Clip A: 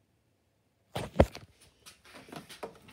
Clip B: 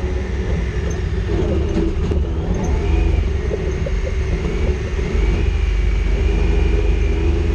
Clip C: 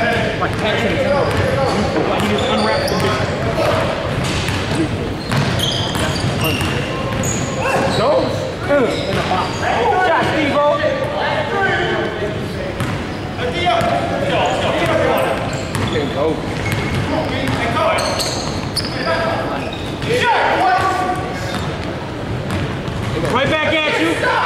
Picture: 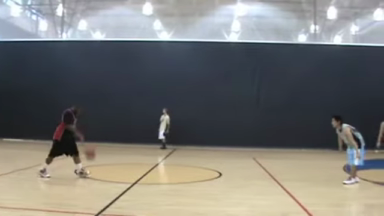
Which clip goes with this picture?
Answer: C